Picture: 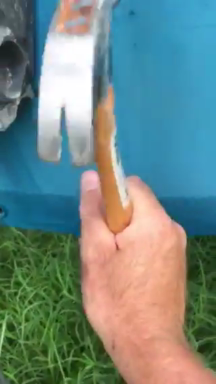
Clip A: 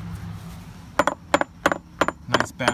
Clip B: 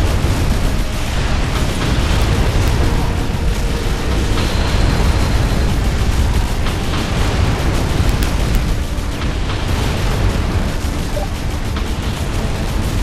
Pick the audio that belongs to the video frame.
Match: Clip A